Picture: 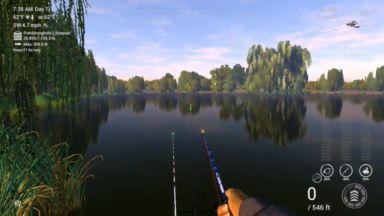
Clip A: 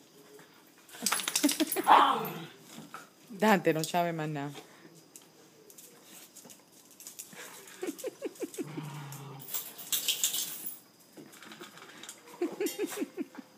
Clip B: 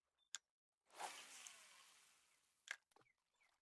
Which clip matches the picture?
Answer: B